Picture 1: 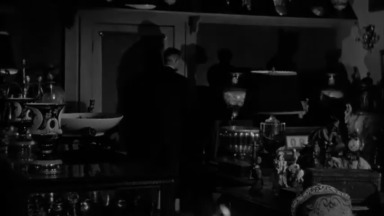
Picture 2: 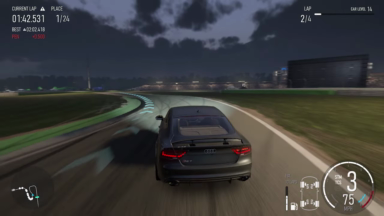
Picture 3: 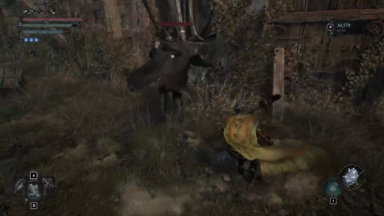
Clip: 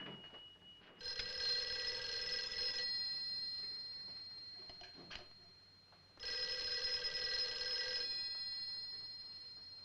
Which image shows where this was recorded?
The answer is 1